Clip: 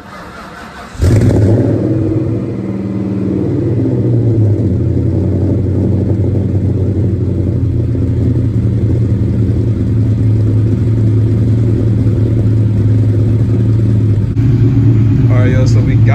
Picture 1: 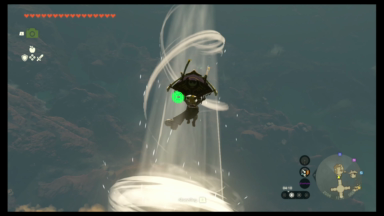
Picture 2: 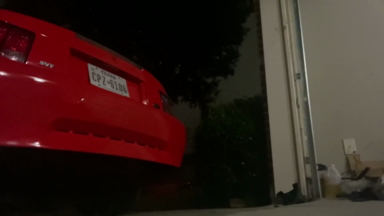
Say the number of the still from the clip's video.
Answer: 2